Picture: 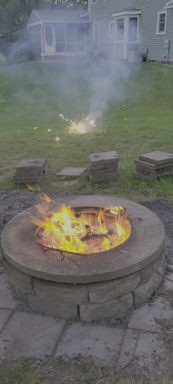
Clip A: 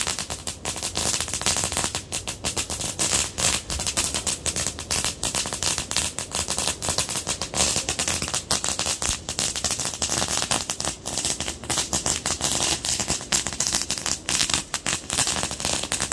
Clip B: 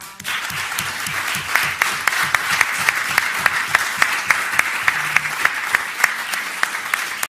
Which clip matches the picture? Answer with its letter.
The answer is A